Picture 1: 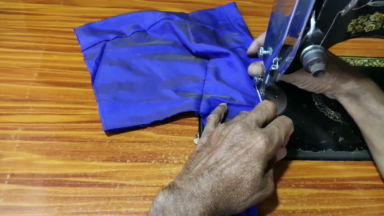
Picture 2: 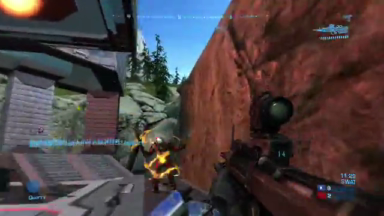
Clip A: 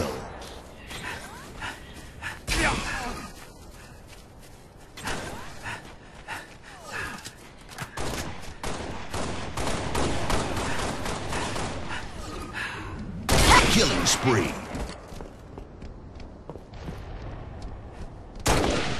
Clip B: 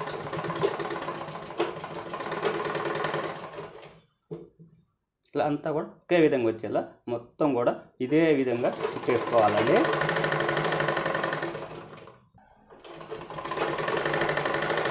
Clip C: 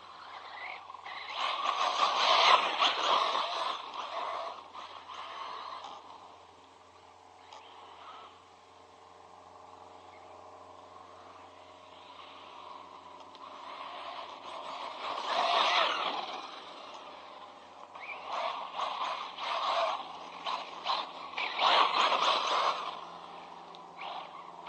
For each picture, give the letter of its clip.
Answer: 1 B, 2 A